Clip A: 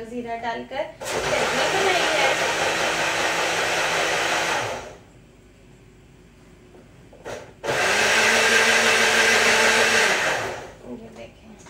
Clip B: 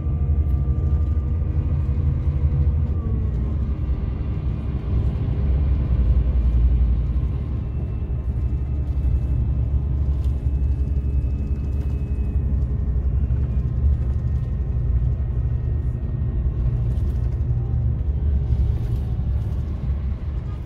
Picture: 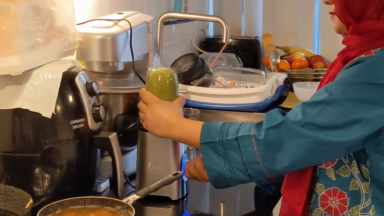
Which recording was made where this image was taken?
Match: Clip A